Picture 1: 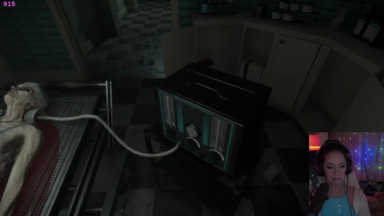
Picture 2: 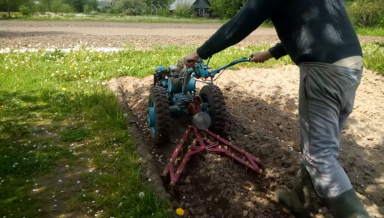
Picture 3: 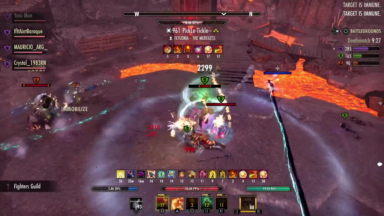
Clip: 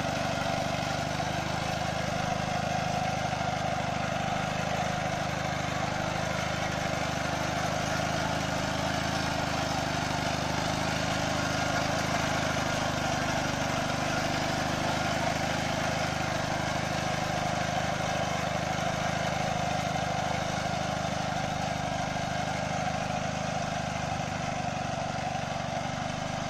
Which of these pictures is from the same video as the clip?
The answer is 2